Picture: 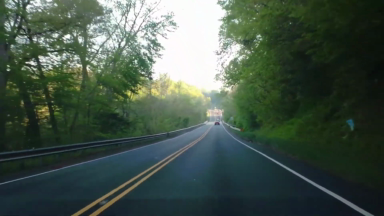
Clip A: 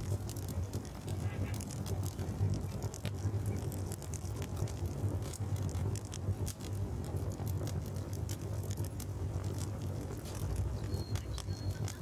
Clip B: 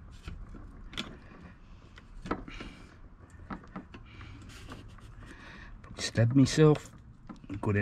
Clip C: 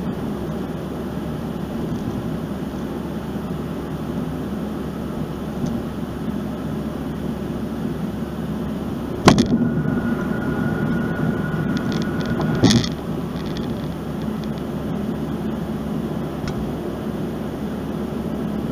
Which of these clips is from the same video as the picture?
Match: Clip C